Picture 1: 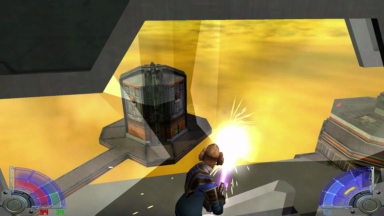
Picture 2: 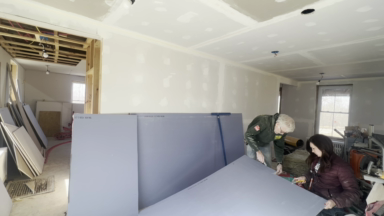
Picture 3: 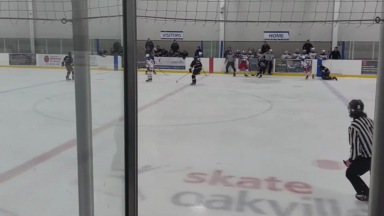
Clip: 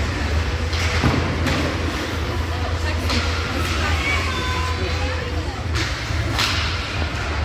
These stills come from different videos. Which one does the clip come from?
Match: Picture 3